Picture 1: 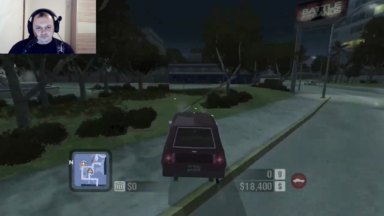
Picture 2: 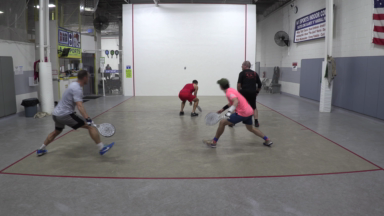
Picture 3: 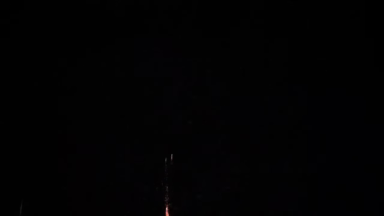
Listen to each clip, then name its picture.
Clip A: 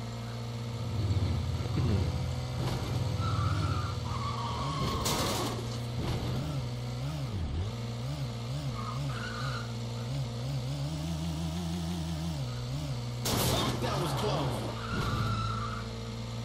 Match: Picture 1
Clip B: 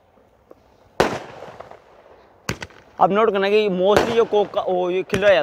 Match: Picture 3